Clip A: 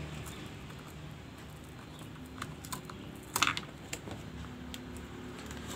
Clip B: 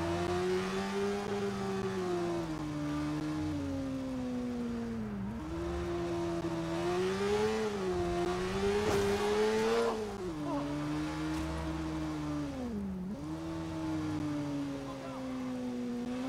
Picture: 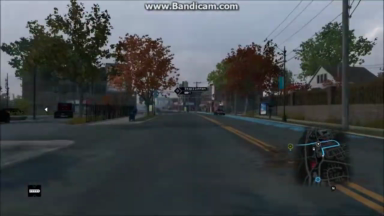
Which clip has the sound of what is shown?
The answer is B